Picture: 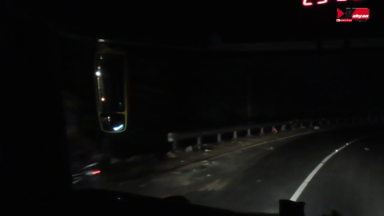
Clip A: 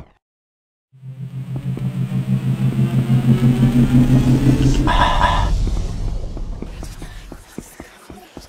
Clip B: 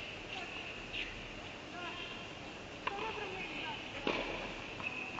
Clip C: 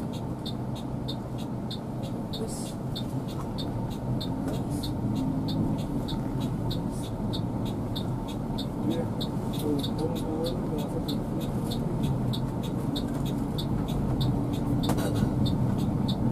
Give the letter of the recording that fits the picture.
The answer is C